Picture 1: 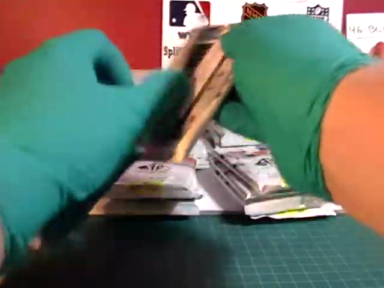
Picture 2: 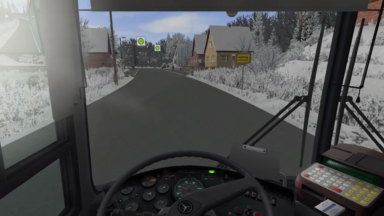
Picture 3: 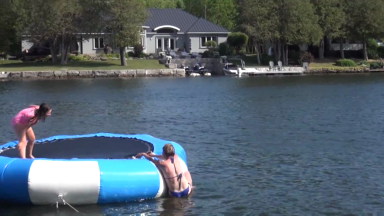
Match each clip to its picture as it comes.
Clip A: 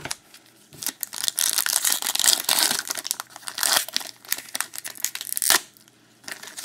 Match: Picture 1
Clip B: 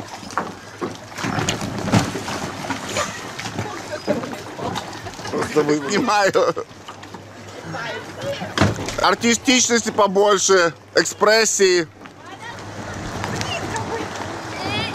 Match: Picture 3